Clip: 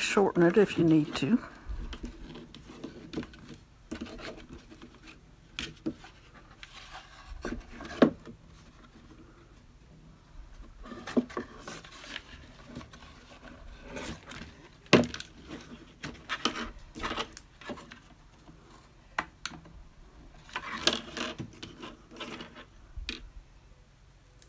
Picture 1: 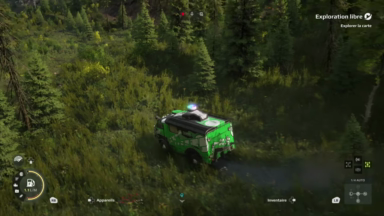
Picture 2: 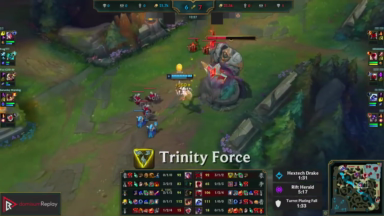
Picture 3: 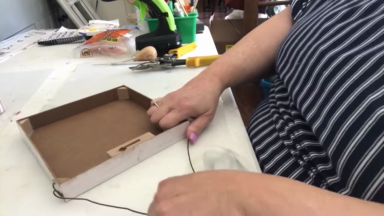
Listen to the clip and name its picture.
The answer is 3